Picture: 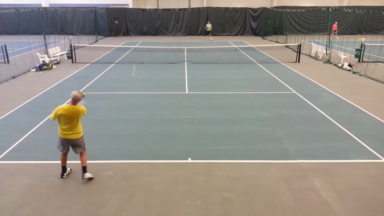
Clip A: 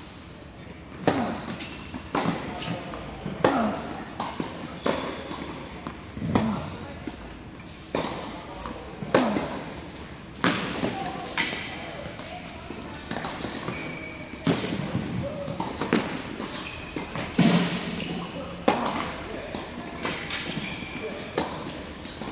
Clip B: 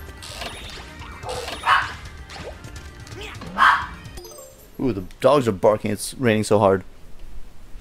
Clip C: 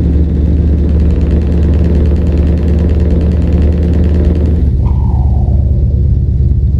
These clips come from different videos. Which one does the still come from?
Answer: A